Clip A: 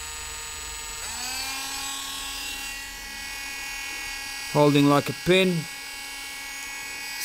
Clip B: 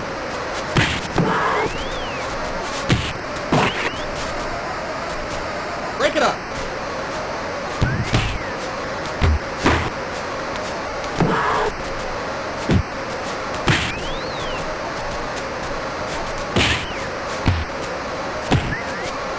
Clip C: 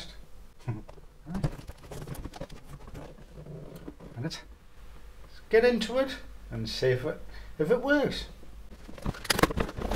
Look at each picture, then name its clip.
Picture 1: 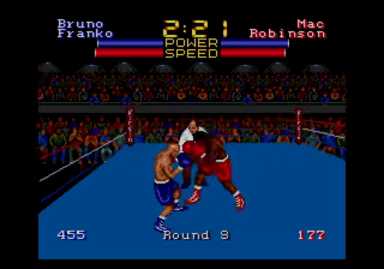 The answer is B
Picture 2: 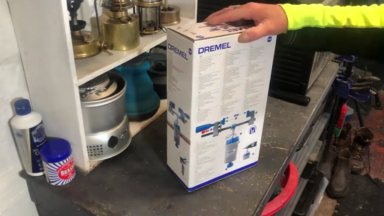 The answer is C